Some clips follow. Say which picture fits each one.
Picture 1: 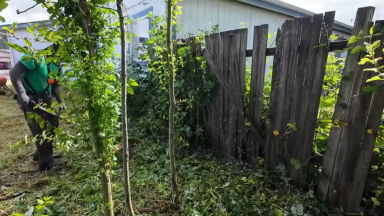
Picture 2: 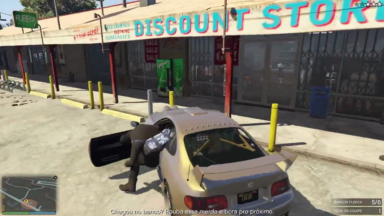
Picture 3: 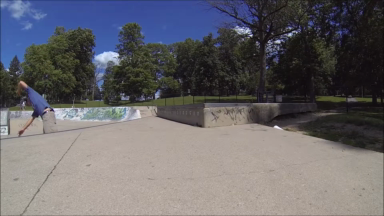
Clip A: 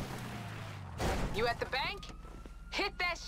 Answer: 2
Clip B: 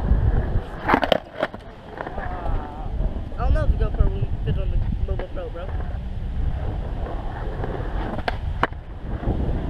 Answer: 3